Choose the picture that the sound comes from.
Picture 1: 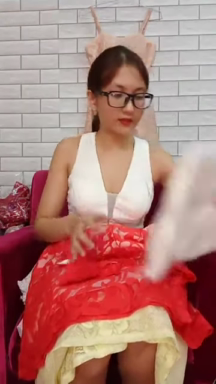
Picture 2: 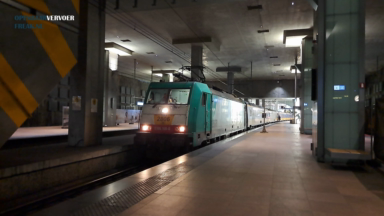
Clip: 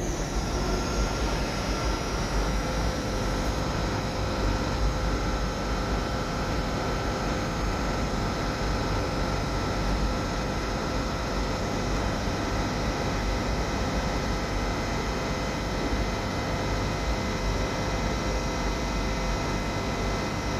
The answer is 2